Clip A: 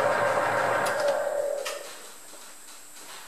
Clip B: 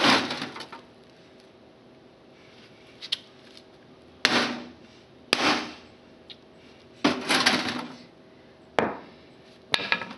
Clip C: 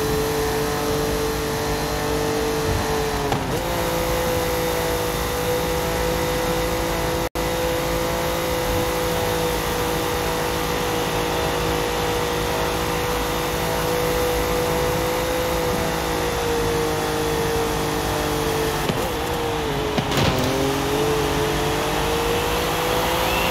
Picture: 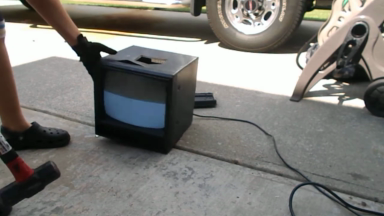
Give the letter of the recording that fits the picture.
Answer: B